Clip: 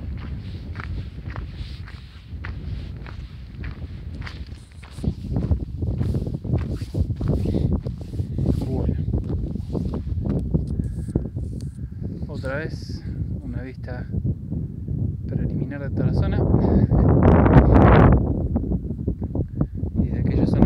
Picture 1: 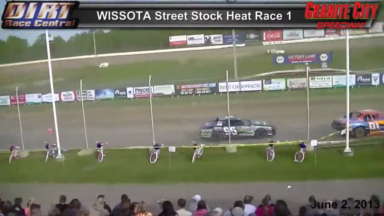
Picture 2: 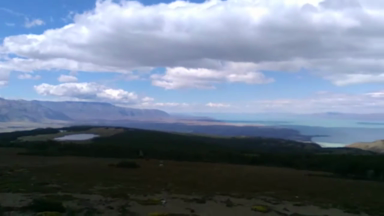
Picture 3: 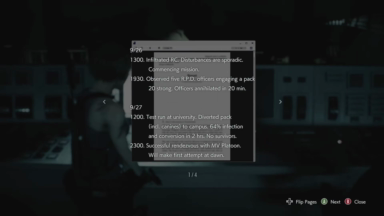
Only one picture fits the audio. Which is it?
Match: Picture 2